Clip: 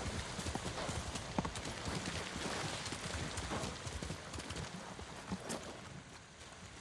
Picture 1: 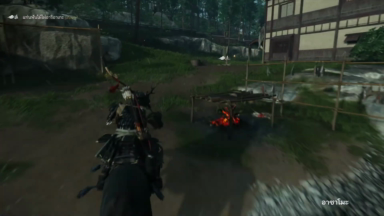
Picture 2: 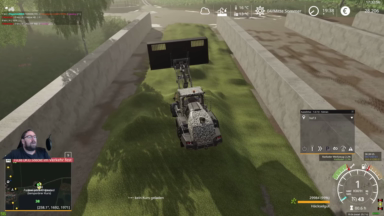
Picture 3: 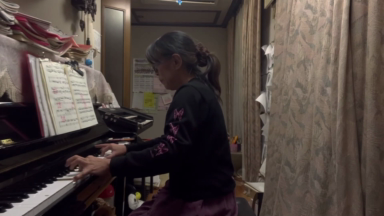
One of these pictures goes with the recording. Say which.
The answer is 1